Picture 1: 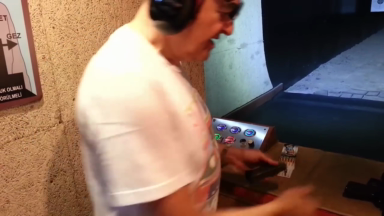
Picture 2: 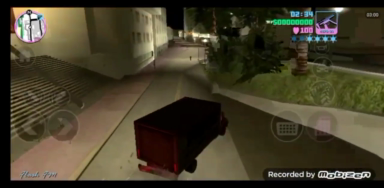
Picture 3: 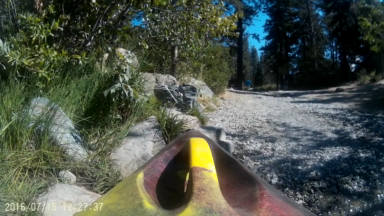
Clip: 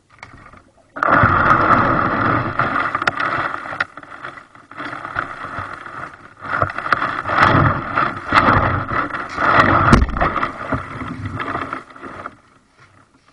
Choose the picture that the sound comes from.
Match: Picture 3